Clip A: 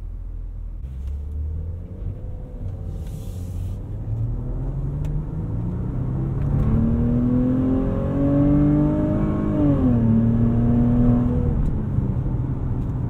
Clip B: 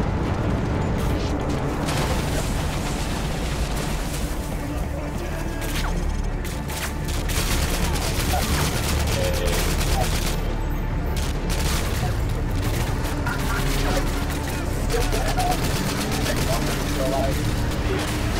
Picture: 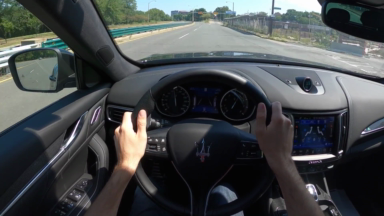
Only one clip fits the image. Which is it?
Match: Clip A